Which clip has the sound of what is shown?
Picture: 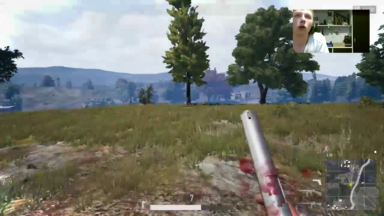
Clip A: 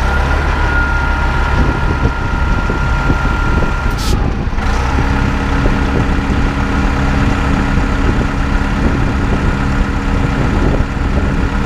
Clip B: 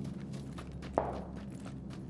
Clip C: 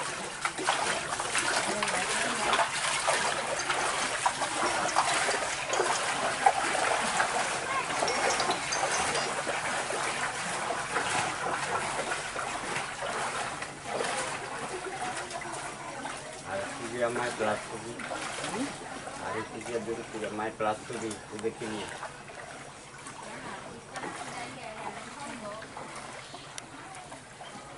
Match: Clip B